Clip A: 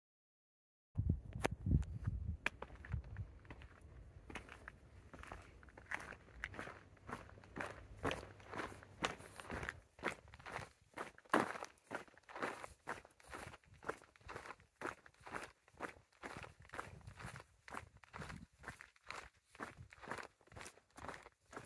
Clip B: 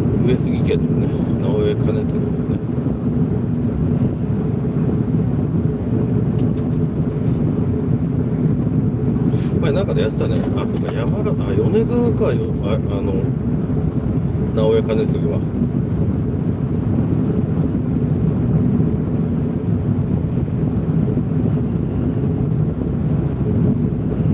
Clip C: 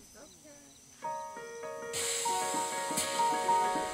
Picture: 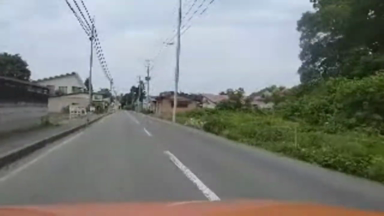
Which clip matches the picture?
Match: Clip B